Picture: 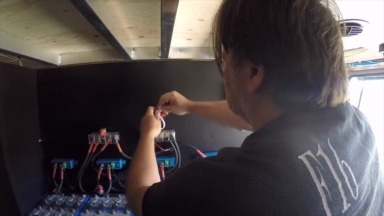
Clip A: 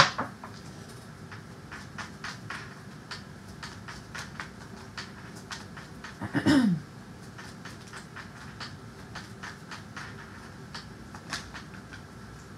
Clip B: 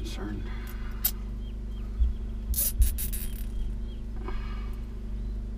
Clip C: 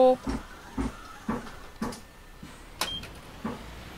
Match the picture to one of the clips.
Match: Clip B